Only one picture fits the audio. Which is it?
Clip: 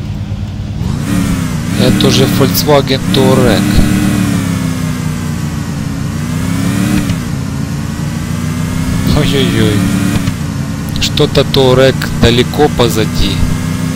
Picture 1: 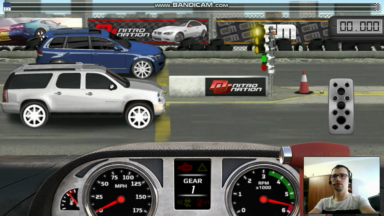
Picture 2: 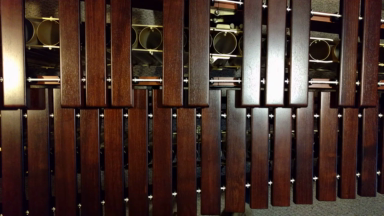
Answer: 1